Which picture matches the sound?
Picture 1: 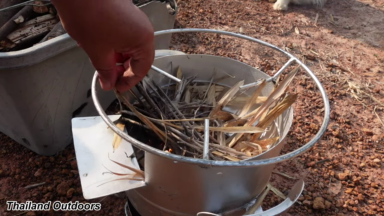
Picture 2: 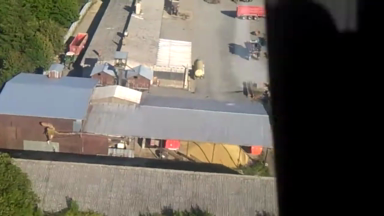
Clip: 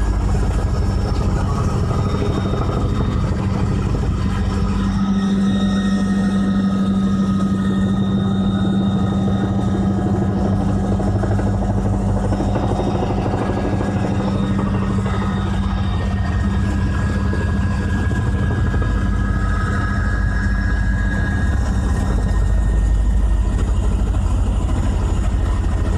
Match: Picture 2